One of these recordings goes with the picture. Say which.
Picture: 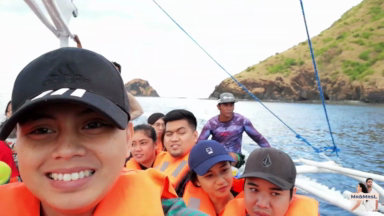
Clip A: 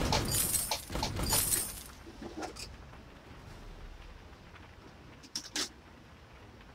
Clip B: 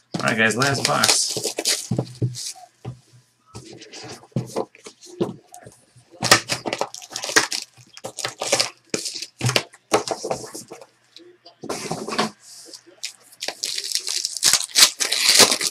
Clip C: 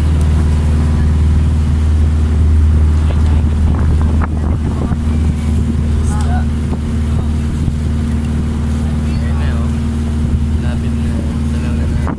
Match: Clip C